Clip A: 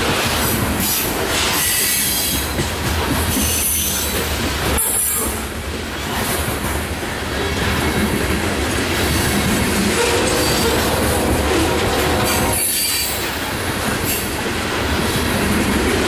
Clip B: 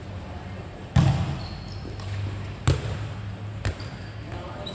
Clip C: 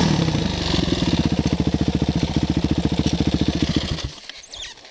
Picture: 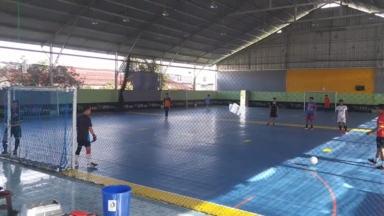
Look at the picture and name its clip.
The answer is B